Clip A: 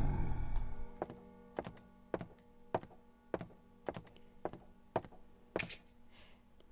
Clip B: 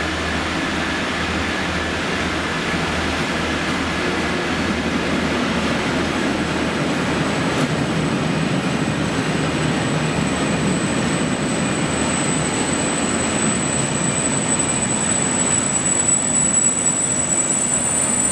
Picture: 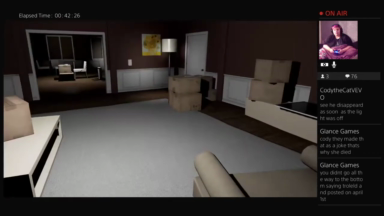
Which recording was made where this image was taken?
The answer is A